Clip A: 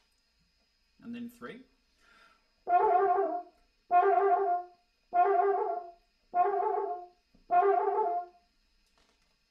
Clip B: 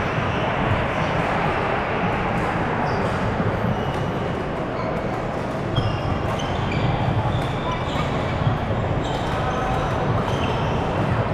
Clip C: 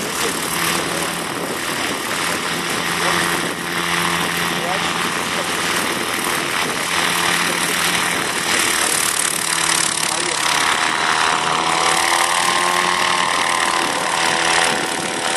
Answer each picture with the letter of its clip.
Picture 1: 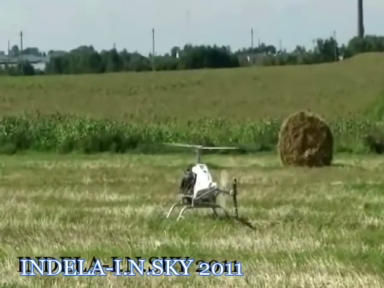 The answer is C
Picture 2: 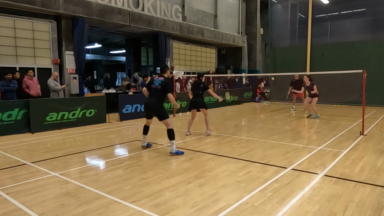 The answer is B